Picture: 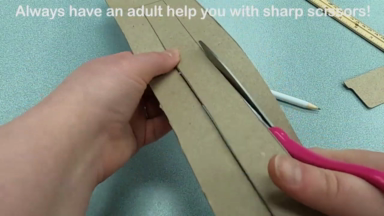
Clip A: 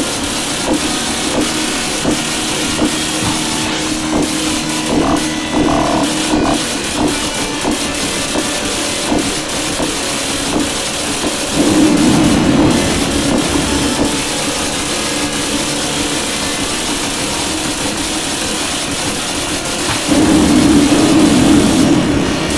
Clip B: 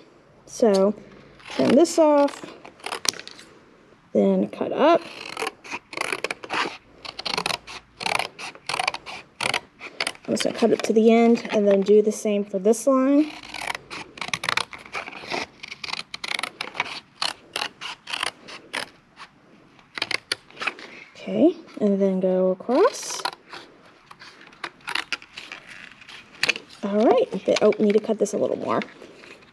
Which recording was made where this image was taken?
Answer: B